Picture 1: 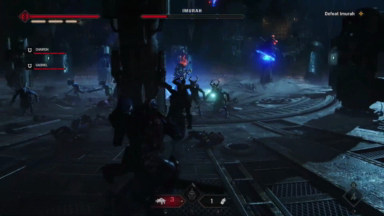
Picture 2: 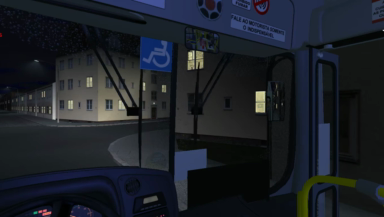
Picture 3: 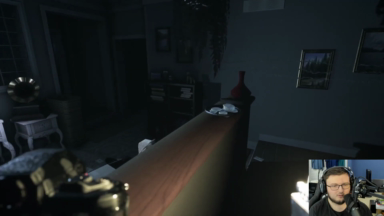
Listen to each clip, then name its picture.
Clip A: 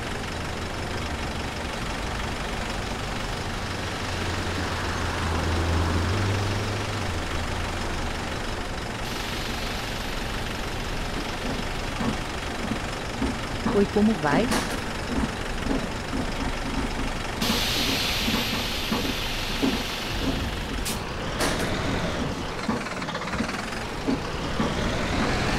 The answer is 2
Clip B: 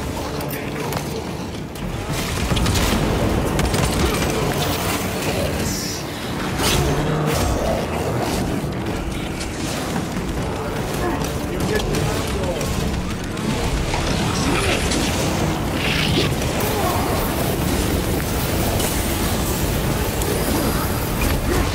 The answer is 1